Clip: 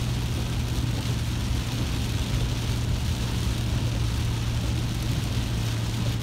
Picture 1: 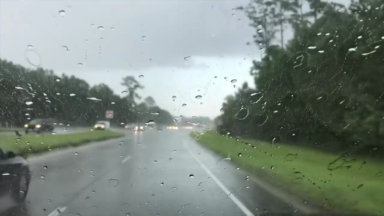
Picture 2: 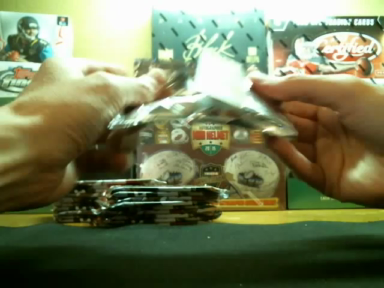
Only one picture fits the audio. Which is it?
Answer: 1